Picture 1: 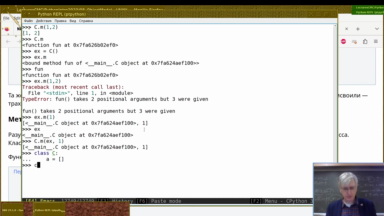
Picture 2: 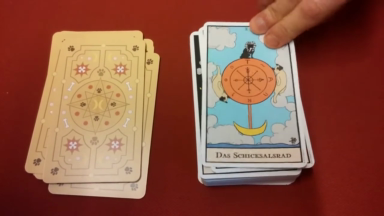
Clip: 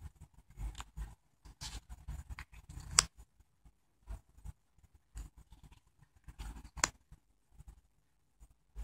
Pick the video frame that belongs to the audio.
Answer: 2